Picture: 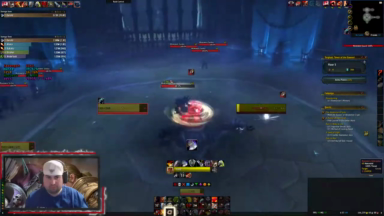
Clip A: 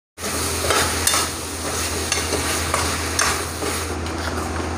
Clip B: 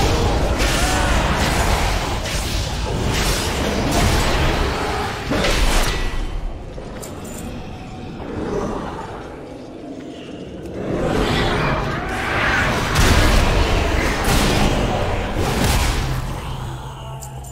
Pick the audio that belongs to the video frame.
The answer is B